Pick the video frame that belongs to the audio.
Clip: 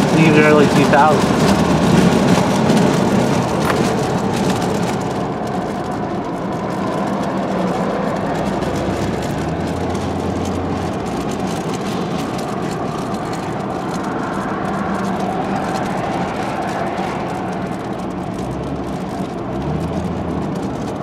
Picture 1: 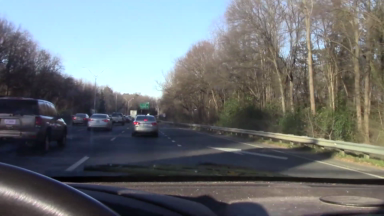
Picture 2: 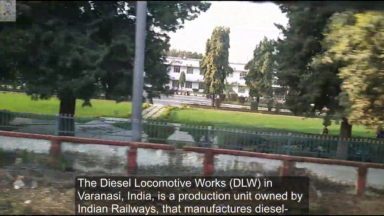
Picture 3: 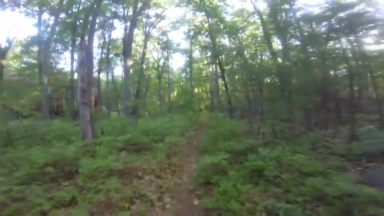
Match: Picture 1